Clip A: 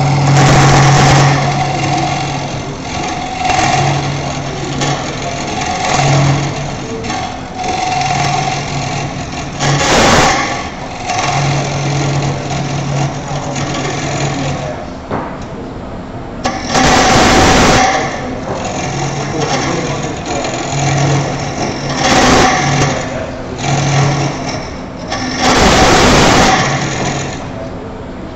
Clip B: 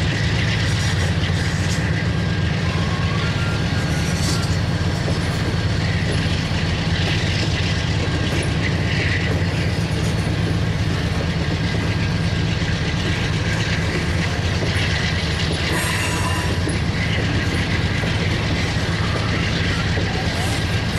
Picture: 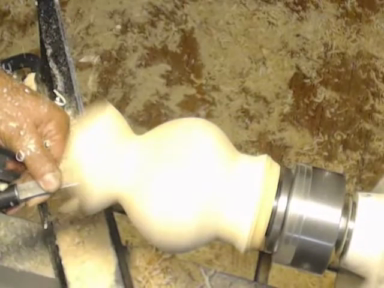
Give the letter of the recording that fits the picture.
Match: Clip A